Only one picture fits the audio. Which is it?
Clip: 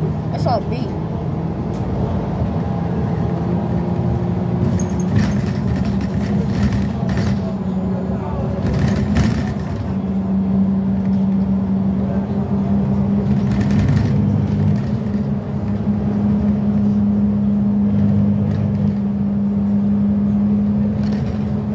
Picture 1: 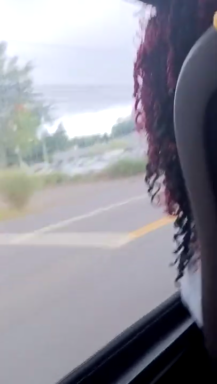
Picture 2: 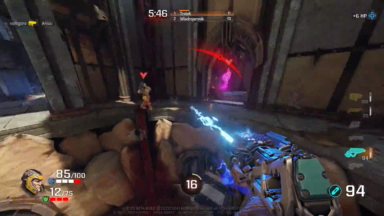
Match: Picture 1